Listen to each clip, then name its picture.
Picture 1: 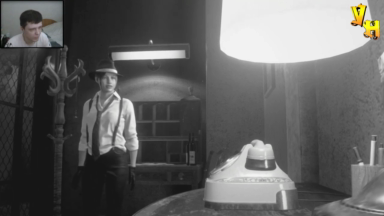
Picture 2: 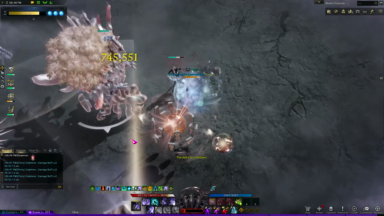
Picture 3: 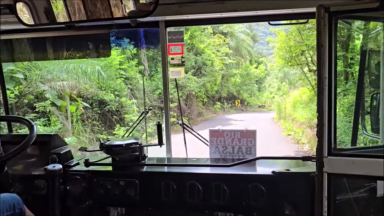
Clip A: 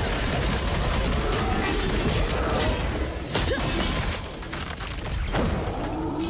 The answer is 2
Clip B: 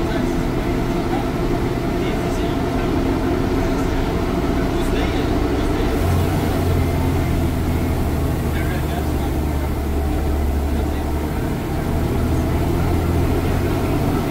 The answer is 3